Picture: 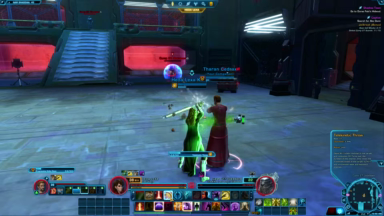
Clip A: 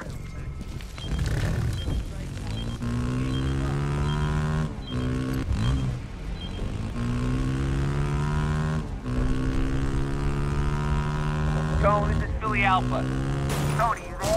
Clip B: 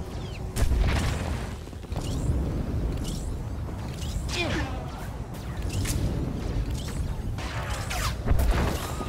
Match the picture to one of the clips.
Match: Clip B